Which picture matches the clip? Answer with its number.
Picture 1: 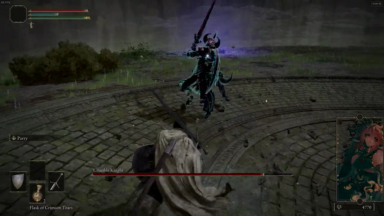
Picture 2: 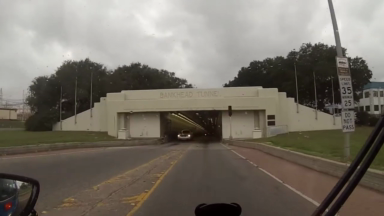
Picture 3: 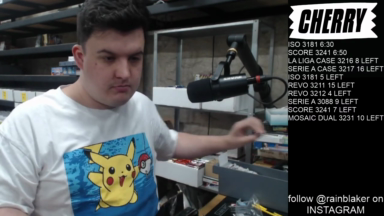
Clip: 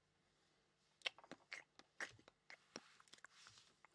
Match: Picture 3